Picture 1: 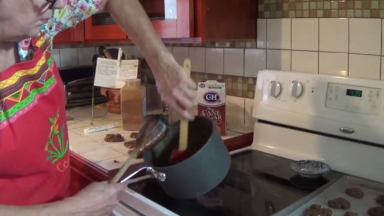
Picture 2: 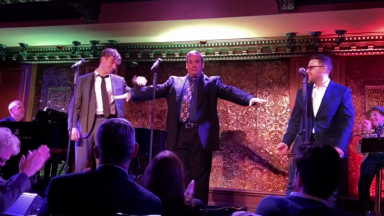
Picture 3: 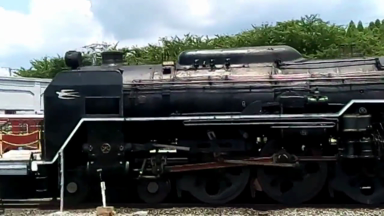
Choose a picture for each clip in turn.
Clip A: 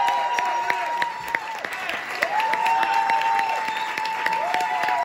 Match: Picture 2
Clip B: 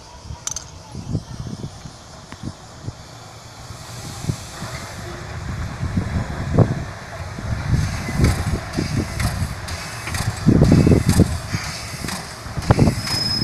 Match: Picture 3